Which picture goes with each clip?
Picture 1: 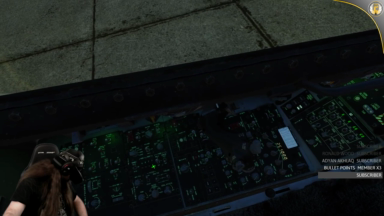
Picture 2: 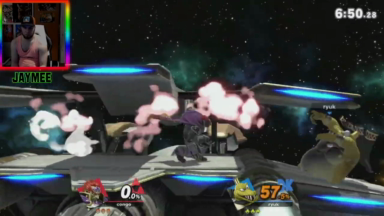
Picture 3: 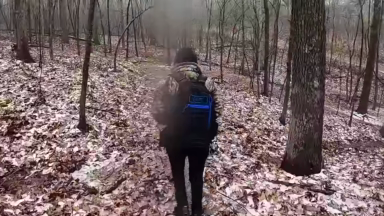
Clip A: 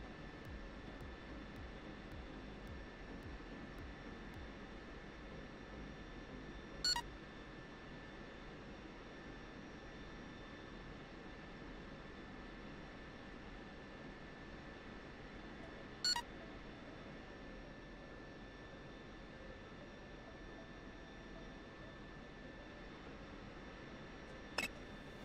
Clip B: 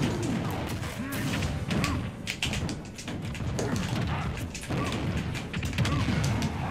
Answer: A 1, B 2